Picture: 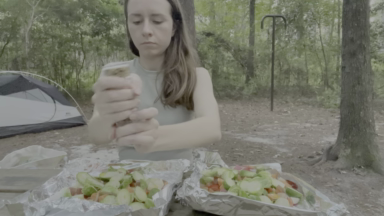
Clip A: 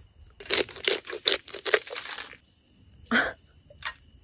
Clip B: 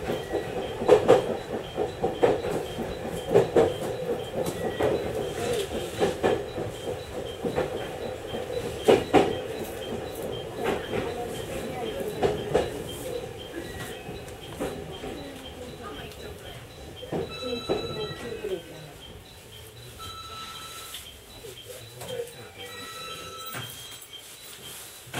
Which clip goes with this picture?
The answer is A